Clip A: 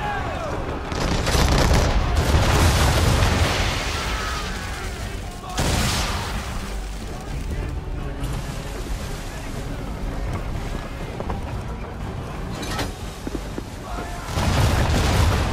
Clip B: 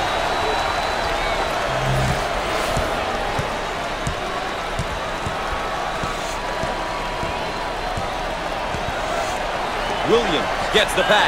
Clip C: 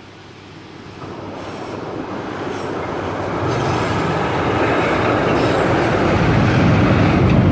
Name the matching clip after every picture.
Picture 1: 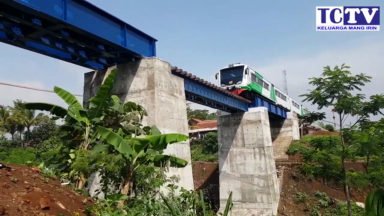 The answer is C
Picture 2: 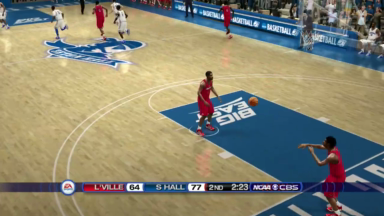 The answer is B